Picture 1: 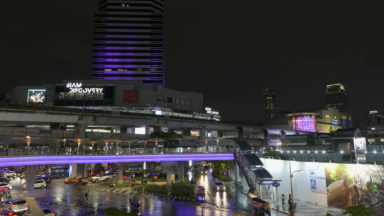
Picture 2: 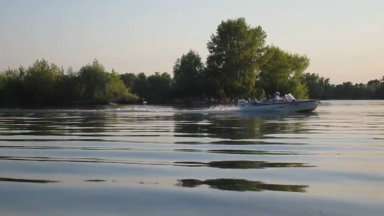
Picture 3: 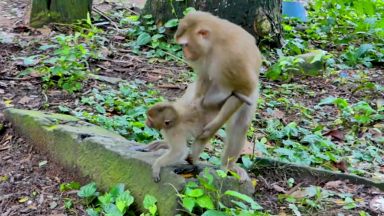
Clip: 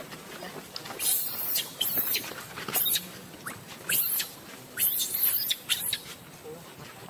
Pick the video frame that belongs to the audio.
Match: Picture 3